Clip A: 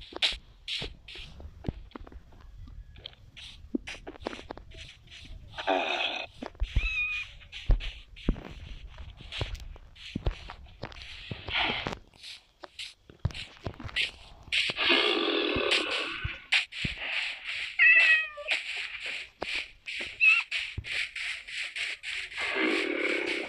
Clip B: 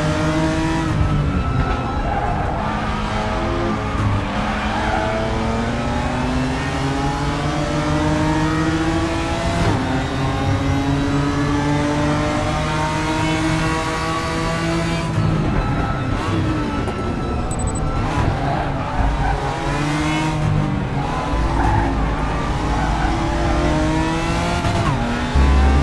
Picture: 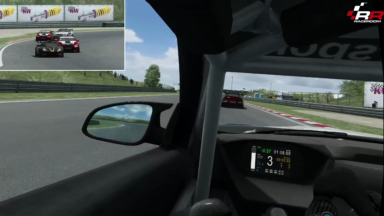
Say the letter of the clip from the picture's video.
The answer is B